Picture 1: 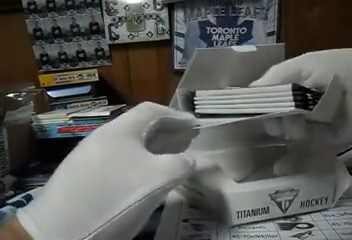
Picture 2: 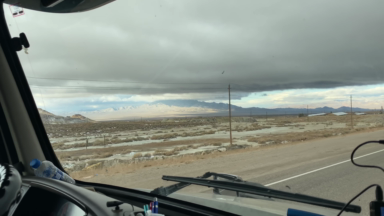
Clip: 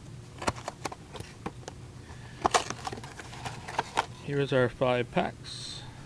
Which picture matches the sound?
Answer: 1